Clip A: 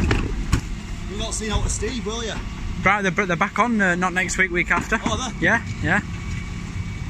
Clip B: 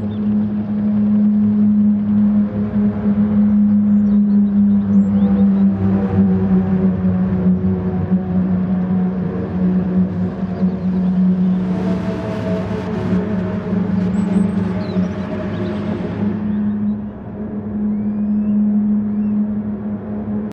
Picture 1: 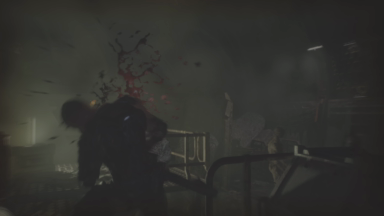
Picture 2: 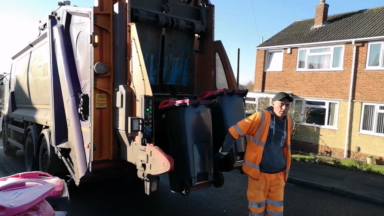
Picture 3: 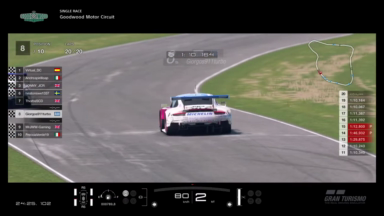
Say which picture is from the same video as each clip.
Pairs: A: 2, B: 3